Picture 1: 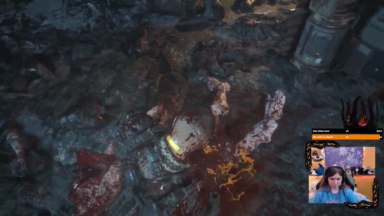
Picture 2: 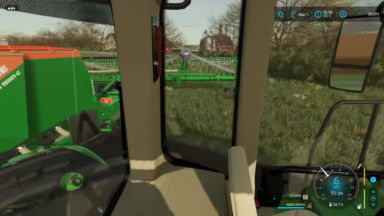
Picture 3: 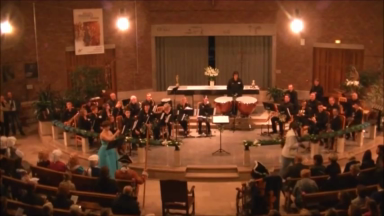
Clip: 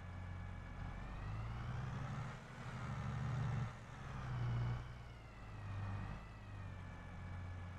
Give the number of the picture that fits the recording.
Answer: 2